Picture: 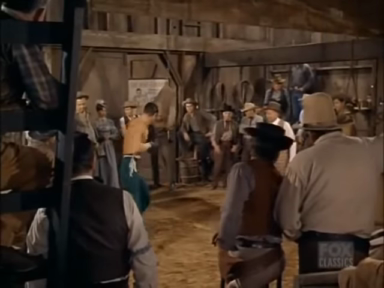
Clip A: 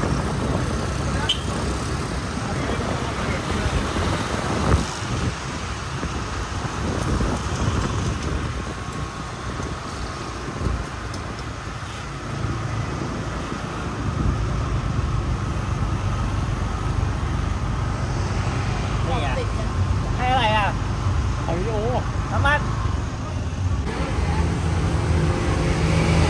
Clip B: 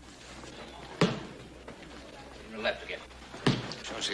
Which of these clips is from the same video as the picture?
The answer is B